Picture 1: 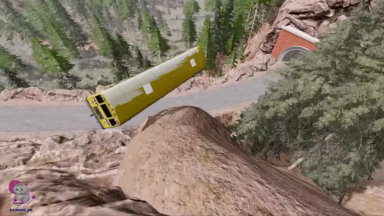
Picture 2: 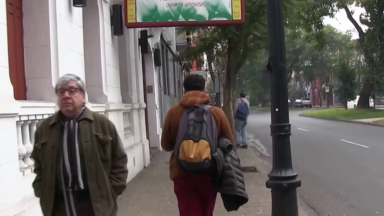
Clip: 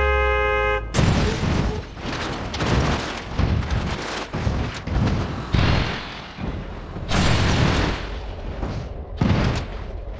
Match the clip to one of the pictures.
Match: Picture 1